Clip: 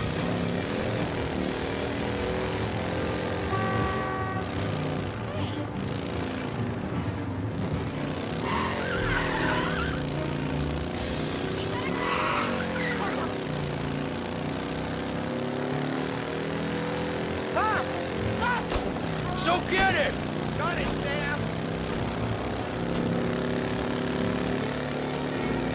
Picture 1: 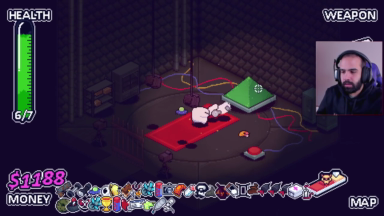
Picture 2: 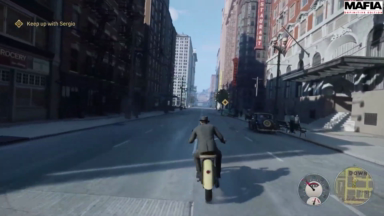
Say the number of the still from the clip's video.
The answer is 2